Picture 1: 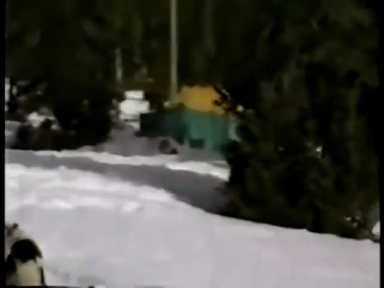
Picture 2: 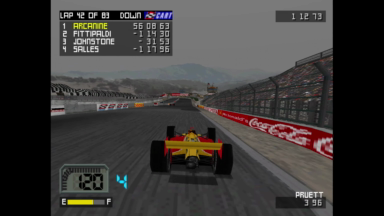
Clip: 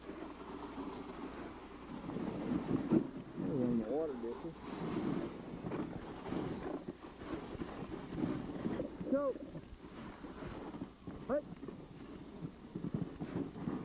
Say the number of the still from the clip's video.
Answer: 1